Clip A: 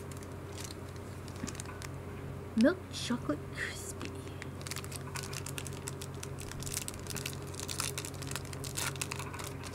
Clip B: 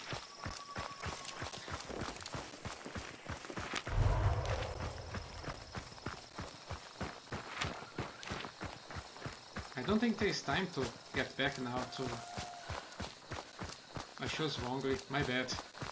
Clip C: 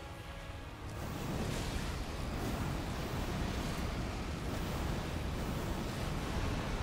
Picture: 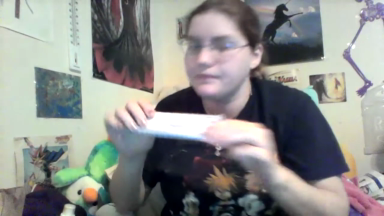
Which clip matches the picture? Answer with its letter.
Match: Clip A